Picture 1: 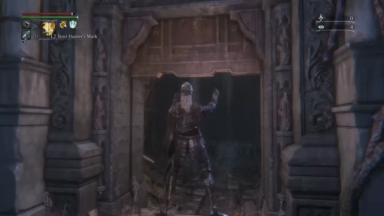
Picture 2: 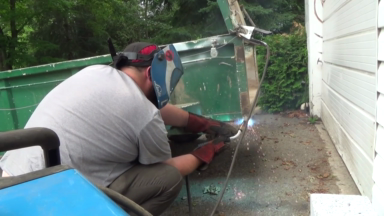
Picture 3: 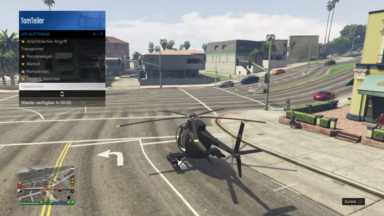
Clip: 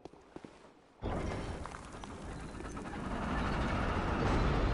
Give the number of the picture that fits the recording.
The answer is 1